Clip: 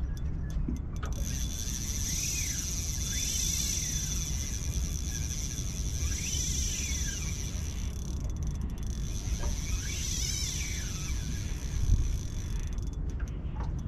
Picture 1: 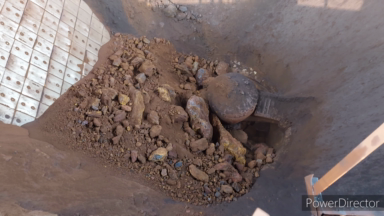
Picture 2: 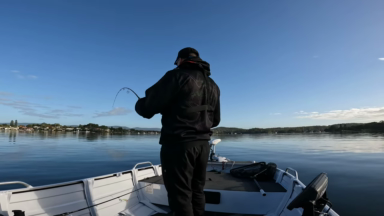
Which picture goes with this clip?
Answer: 2